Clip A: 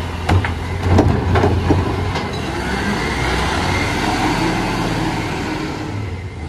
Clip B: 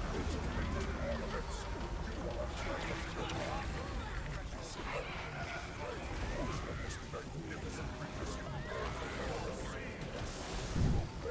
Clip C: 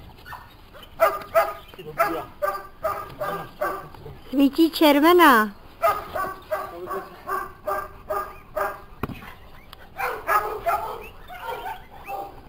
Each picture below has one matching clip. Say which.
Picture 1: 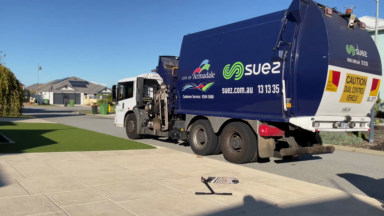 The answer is A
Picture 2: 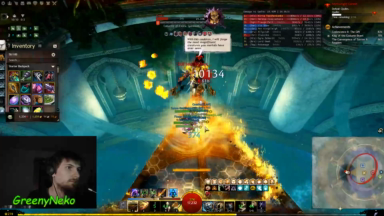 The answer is B